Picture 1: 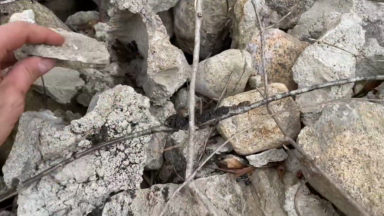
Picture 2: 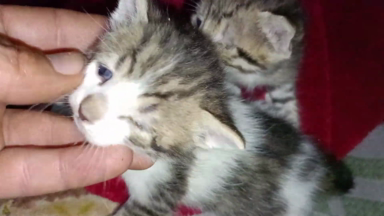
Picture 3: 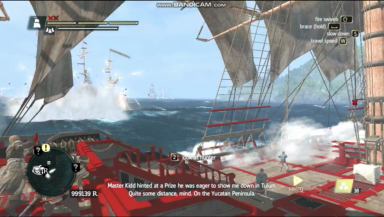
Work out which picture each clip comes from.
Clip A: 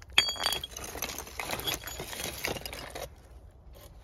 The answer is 1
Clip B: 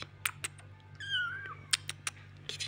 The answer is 2